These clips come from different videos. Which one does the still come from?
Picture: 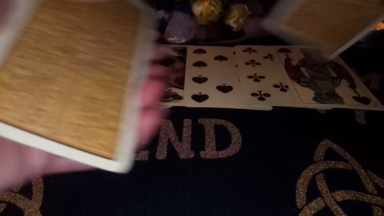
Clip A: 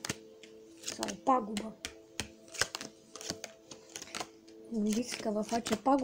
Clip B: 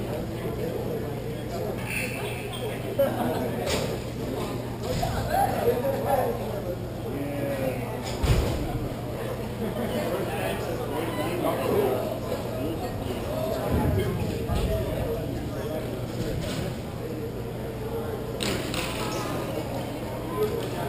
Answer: A